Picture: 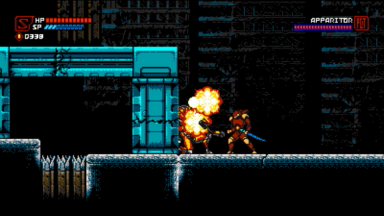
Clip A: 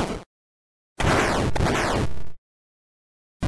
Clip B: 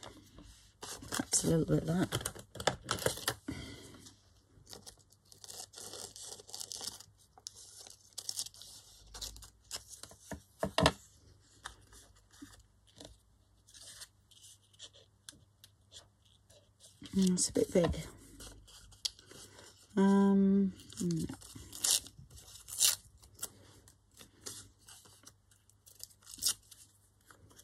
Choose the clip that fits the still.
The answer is A